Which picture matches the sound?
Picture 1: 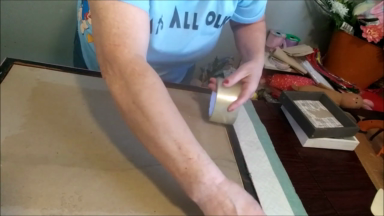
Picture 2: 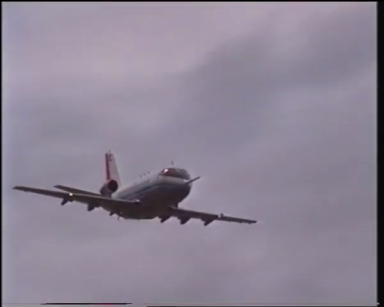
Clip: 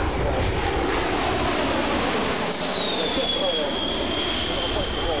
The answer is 2